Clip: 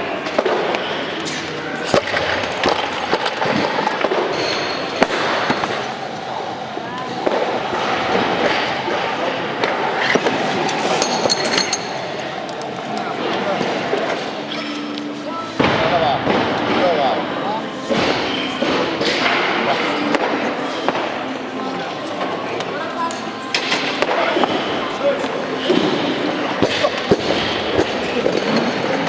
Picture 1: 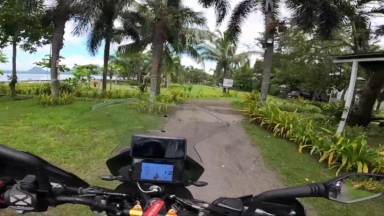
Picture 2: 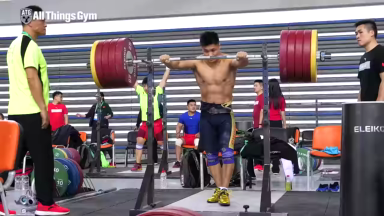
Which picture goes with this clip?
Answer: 2